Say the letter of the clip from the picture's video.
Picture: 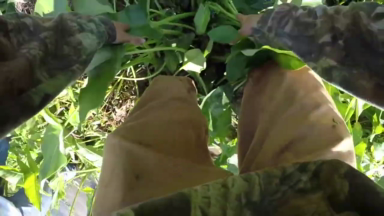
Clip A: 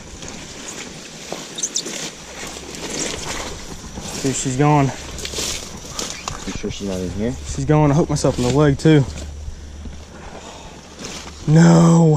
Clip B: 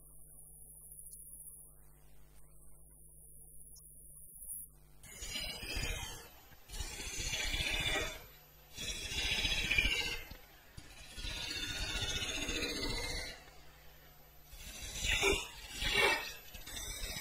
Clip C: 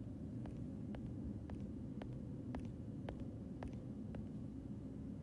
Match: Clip A